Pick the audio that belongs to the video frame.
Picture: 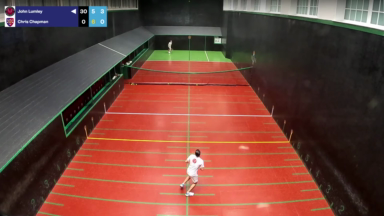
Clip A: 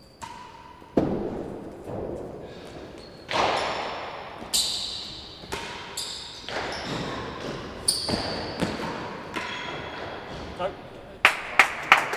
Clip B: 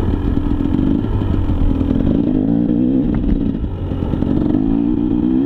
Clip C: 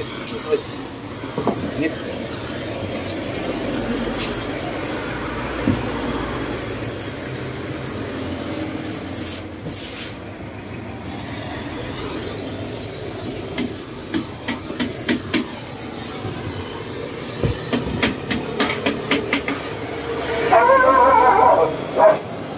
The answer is A